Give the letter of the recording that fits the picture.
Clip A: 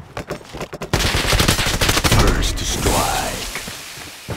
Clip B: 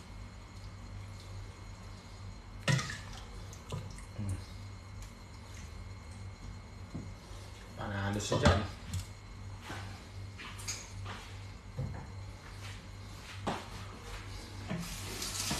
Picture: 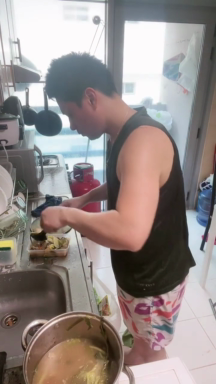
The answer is B